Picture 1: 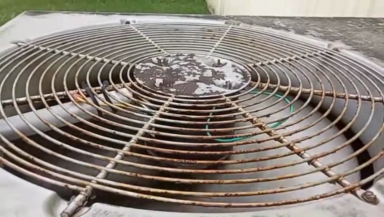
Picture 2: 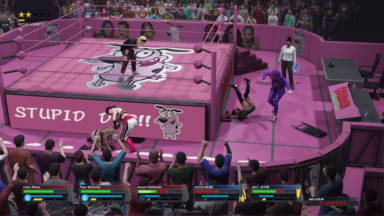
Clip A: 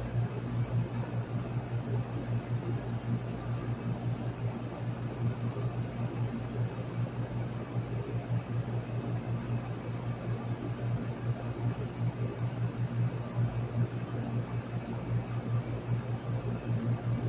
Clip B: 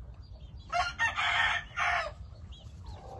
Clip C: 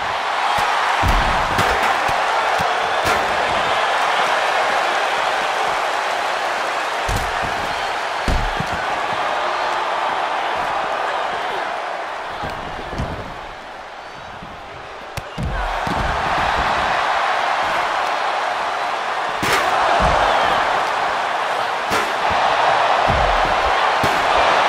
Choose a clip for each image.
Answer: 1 A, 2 C